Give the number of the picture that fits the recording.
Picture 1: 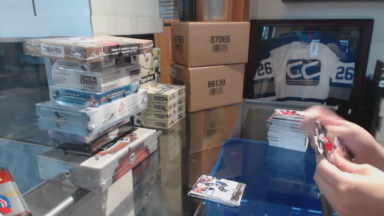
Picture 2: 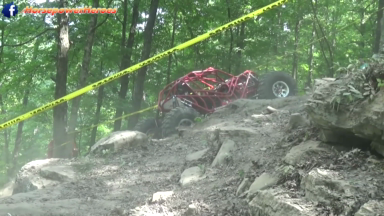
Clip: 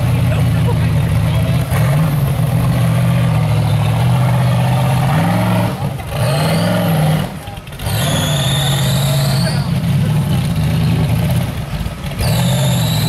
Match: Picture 2